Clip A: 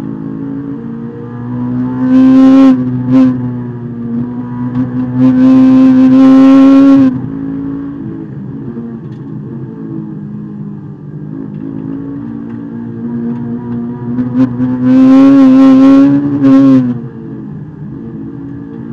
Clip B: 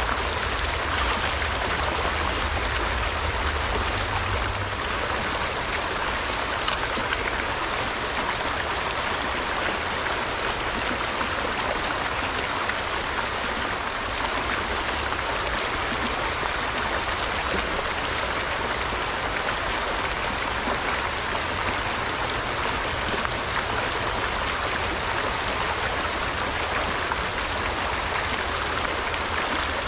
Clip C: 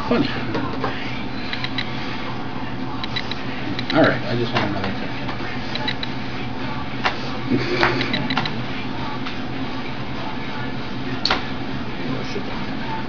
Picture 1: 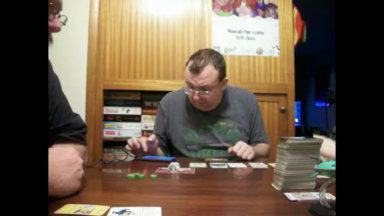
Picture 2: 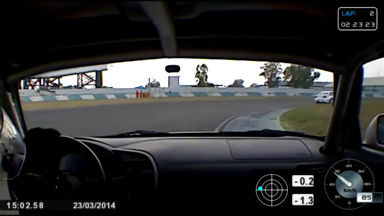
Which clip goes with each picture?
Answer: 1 C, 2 A